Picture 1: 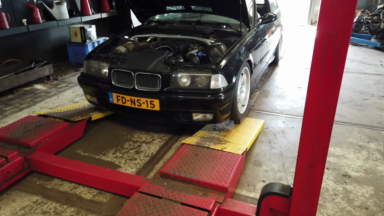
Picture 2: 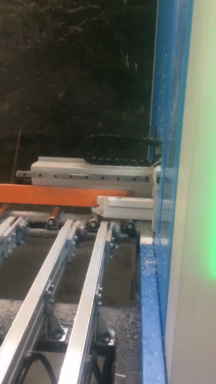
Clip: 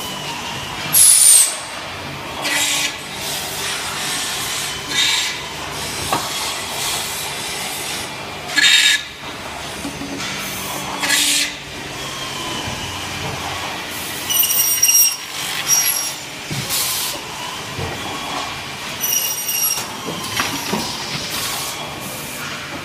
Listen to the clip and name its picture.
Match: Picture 2